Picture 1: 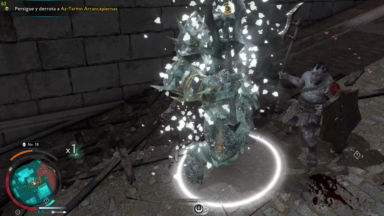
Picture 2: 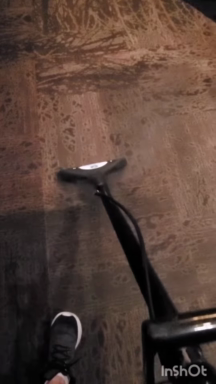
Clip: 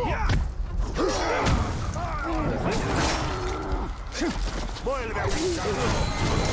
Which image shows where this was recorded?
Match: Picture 1